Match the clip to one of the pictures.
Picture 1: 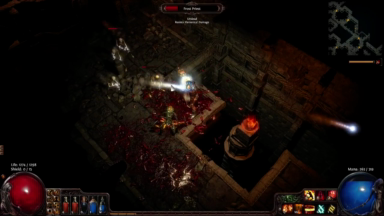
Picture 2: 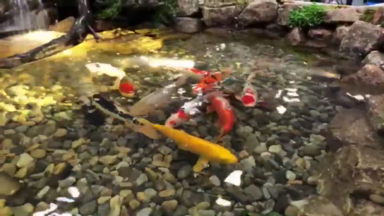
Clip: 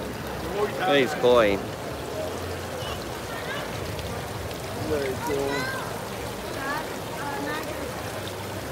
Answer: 2